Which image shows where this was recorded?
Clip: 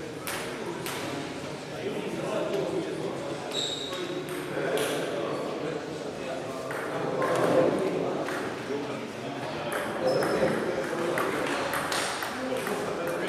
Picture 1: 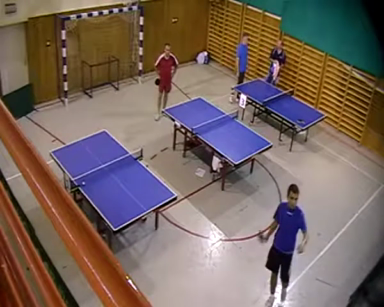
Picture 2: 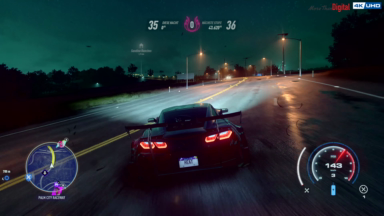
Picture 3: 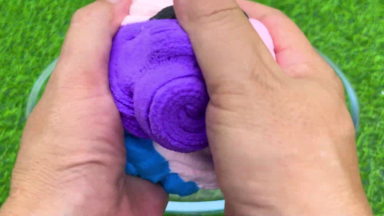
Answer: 1